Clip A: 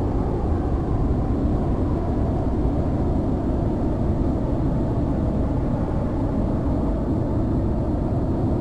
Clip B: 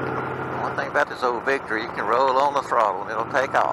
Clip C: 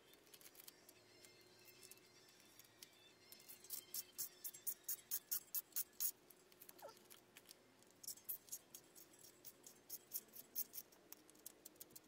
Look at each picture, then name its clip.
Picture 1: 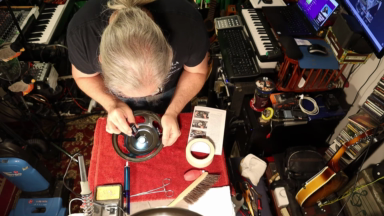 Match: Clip C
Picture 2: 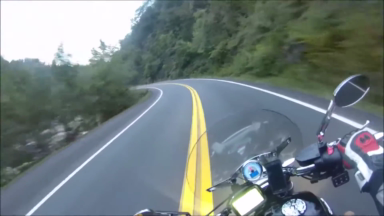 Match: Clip B